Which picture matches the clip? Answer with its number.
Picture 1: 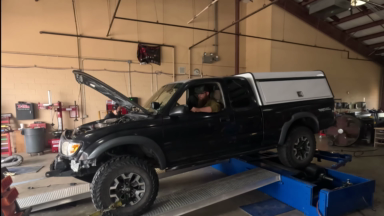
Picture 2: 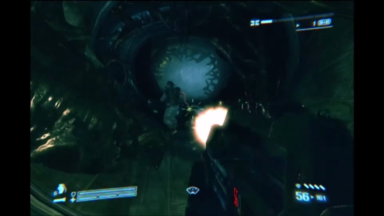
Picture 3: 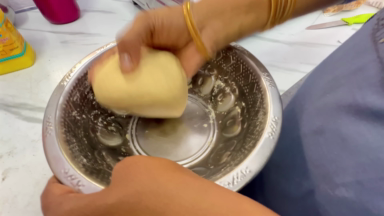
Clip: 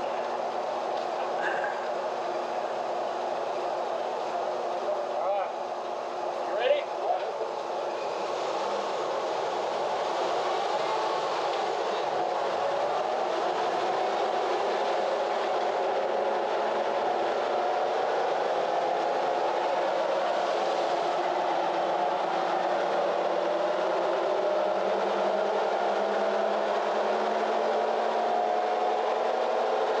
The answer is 1